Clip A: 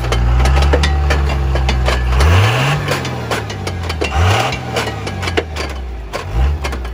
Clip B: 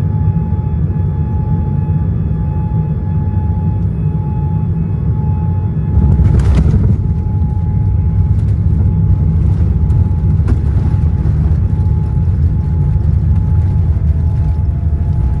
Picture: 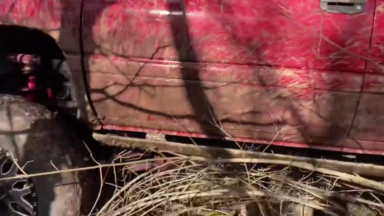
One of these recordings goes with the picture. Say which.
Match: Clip A